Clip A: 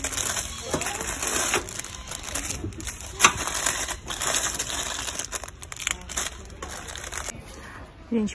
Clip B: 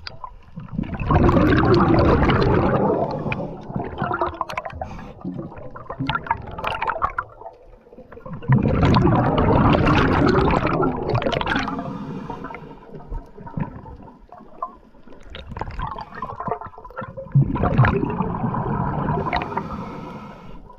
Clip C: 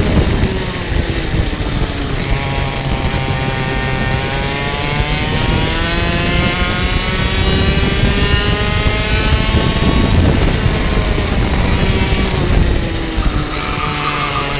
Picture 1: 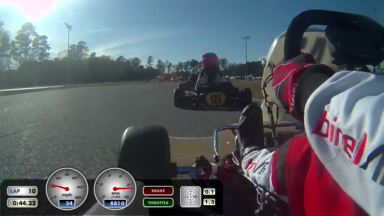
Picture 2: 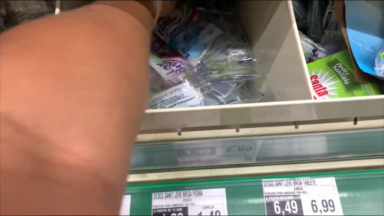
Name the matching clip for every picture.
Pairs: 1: C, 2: A